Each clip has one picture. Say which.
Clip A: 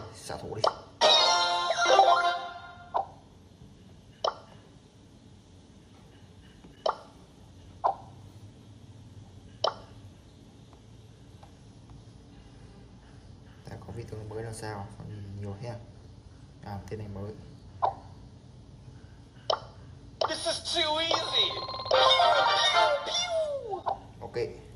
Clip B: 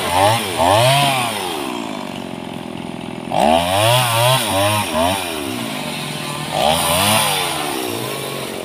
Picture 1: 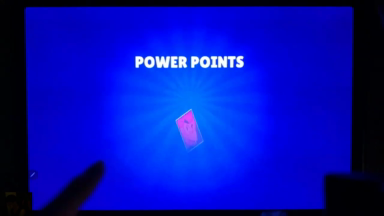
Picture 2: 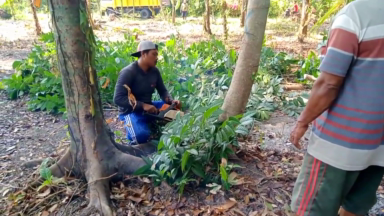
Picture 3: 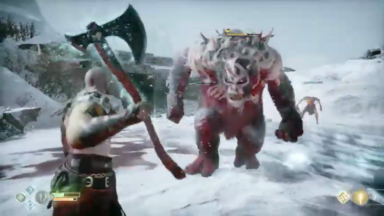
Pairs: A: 1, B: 2